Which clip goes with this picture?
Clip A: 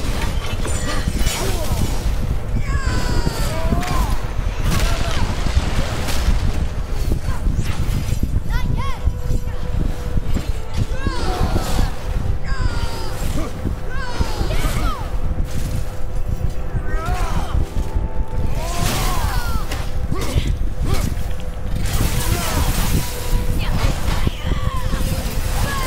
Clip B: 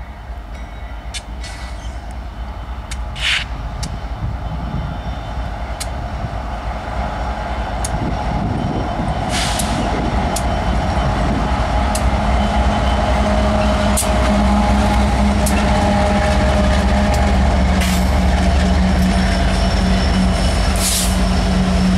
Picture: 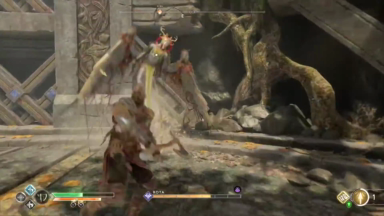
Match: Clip A